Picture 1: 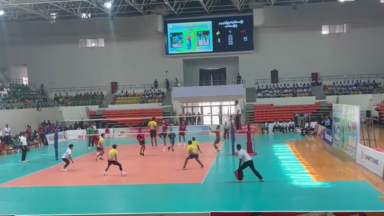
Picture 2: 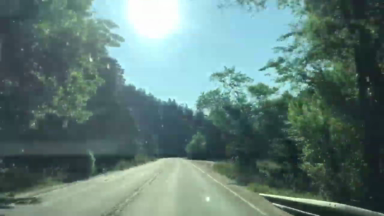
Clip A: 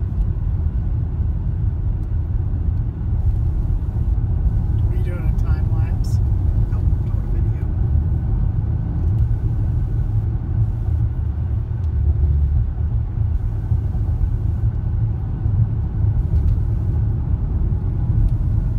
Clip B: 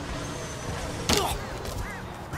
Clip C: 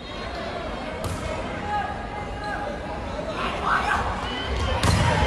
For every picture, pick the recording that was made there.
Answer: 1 C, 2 A